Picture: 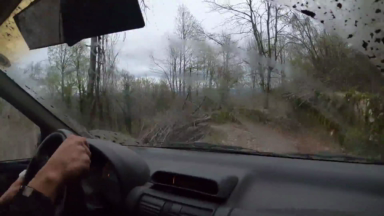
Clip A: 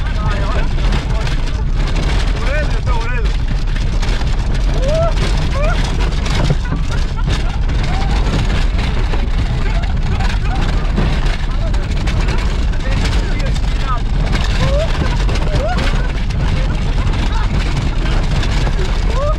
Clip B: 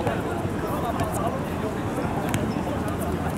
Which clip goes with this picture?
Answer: A